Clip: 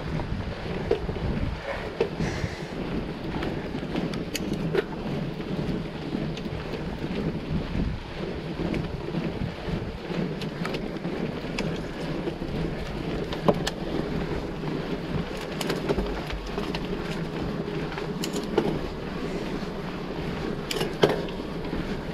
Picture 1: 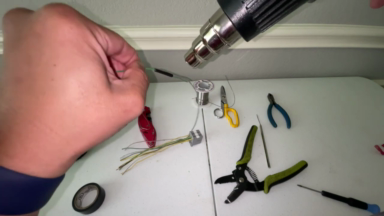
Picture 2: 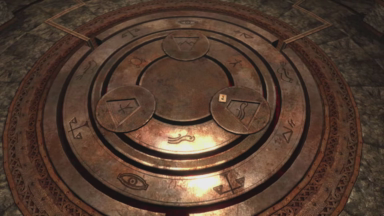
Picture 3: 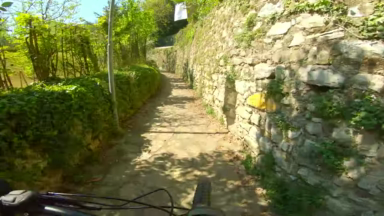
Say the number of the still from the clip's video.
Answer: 3